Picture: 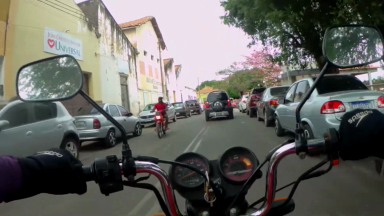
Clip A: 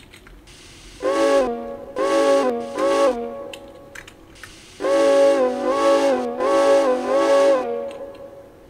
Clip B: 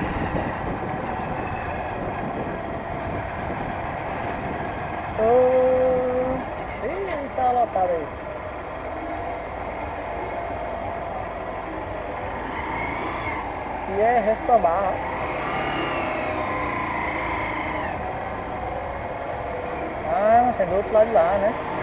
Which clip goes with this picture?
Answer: B